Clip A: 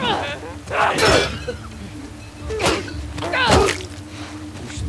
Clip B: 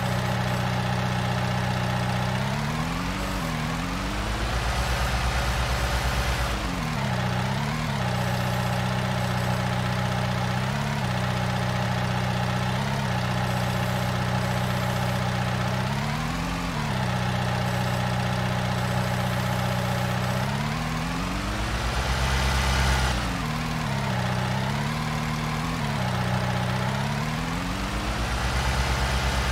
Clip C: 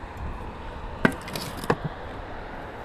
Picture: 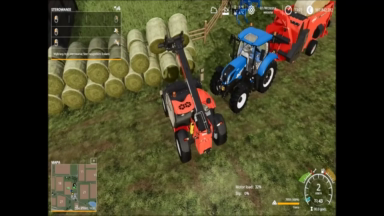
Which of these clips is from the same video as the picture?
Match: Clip B